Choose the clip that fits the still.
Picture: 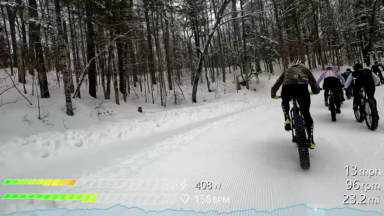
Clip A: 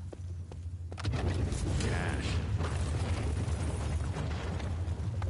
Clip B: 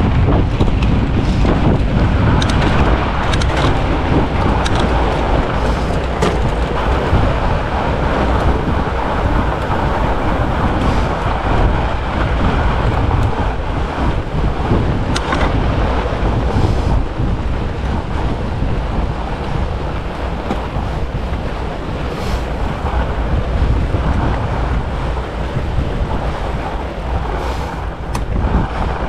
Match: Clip B